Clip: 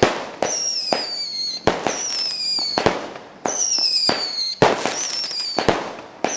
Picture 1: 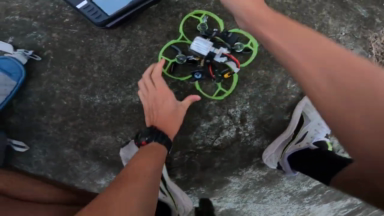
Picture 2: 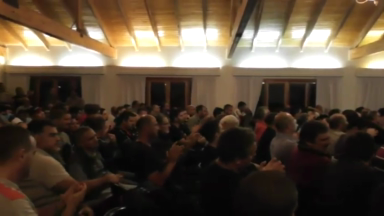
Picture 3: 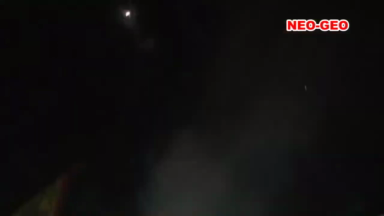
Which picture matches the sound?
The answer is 3